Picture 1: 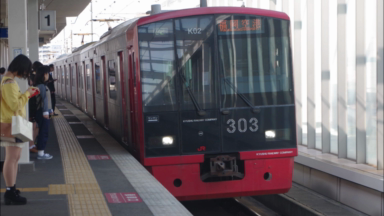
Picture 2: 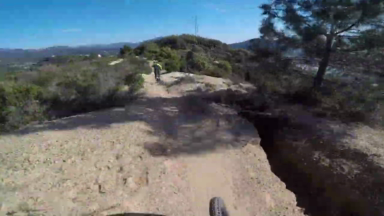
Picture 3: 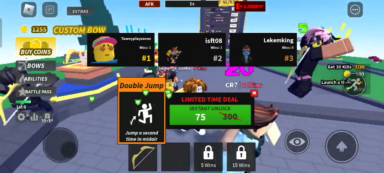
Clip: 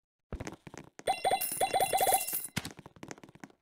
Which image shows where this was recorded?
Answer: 3